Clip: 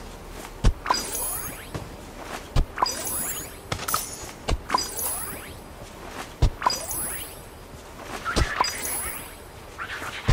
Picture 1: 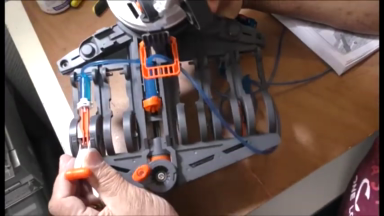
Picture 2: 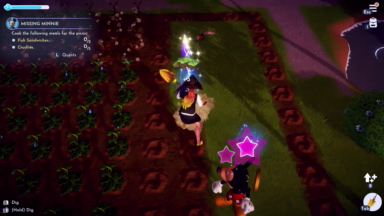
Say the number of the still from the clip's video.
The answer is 2